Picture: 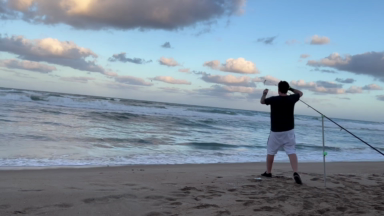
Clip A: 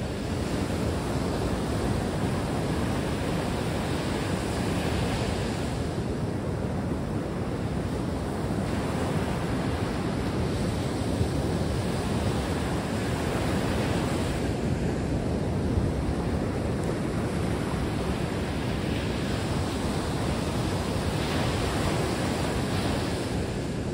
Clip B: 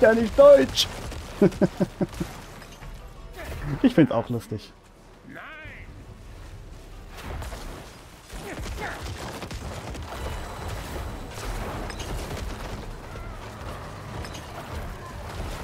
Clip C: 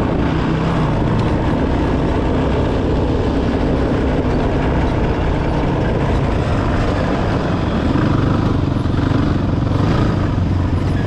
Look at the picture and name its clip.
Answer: A